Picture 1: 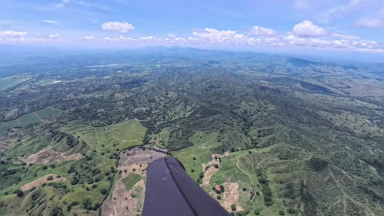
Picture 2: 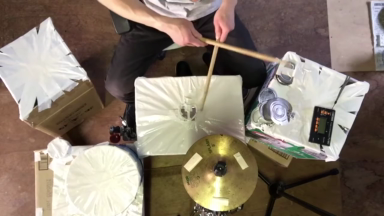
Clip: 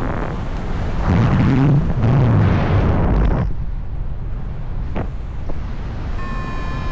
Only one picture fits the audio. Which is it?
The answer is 1